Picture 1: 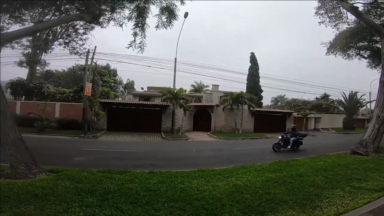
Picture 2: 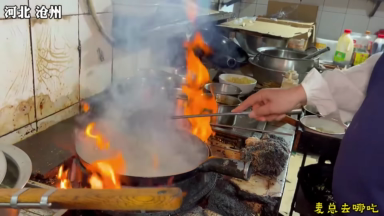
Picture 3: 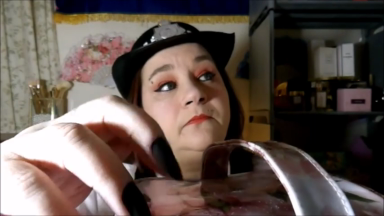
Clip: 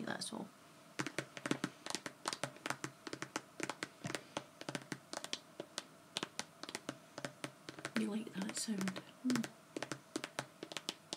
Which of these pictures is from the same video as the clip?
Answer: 3